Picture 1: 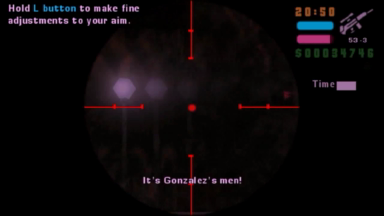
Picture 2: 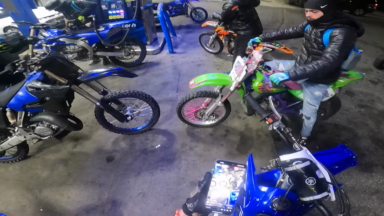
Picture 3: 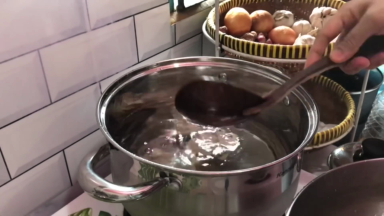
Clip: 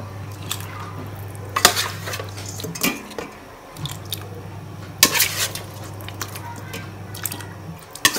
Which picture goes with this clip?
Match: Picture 3